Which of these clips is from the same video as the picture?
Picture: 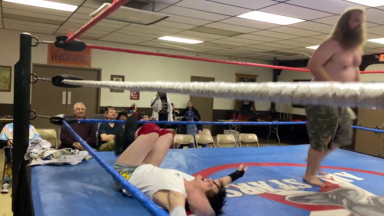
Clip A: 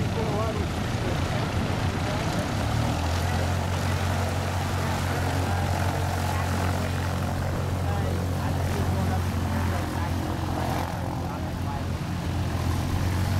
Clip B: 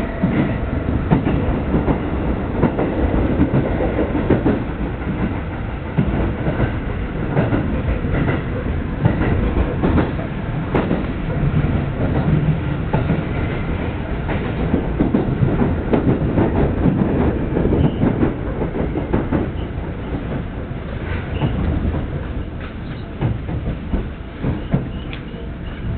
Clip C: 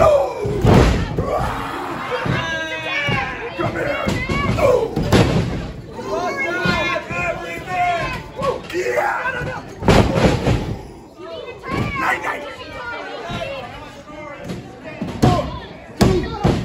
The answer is C